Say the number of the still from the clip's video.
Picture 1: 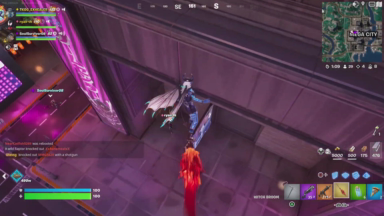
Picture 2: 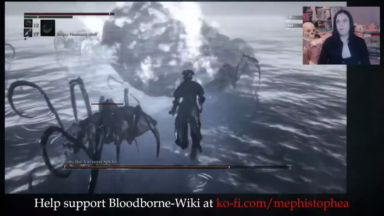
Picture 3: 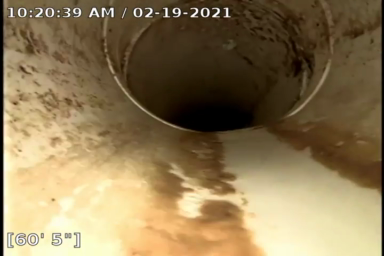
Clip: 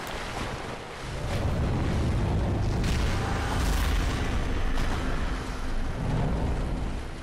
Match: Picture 2